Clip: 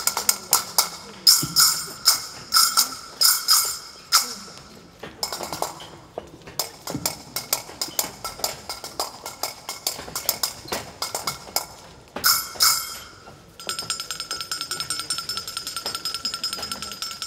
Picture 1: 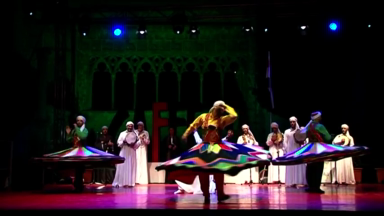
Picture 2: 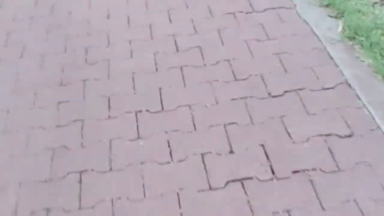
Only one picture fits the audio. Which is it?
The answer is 1